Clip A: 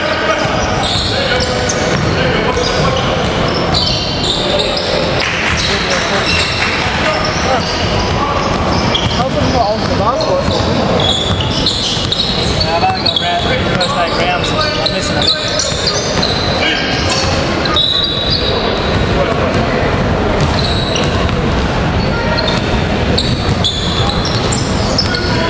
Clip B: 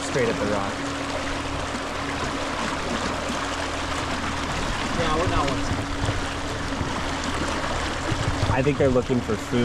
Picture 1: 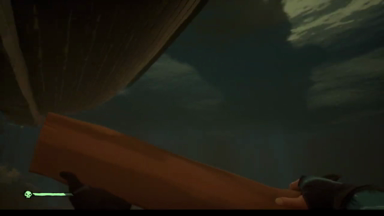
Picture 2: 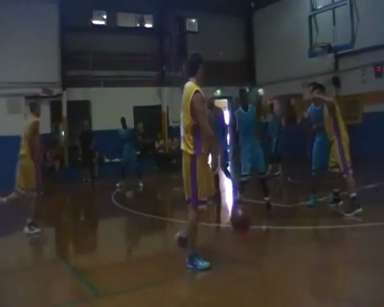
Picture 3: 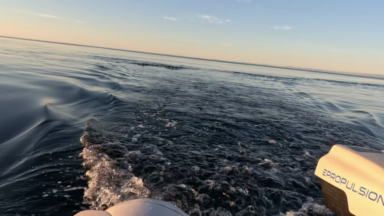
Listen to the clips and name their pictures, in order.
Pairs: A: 2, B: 3